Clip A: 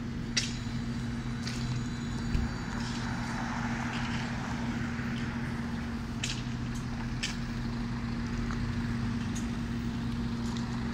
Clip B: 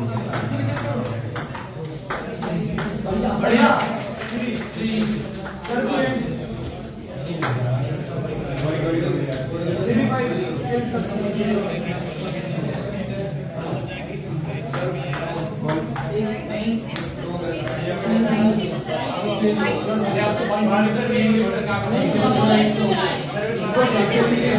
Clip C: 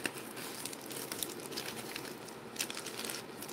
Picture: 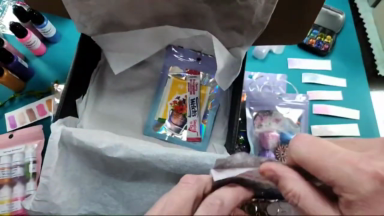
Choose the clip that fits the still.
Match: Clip C